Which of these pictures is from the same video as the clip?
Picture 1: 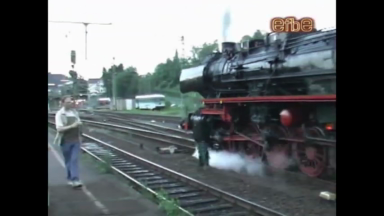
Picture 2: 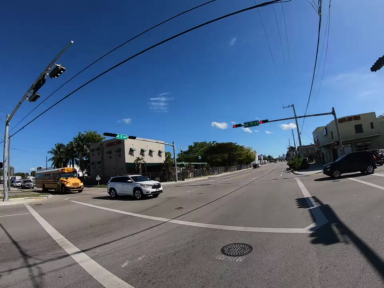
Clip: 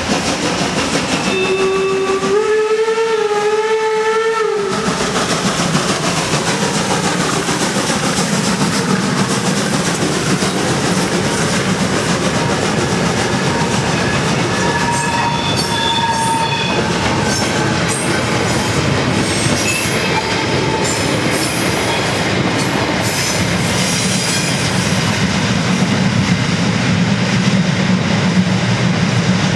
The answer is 1